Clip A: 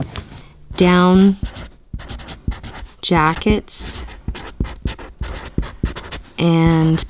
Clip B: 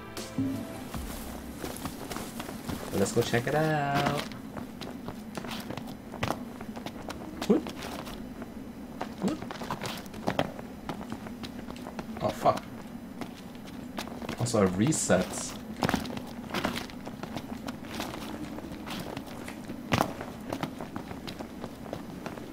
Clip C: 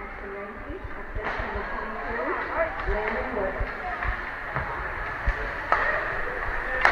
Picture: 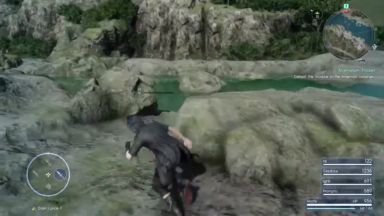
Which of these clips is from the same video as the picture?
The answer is B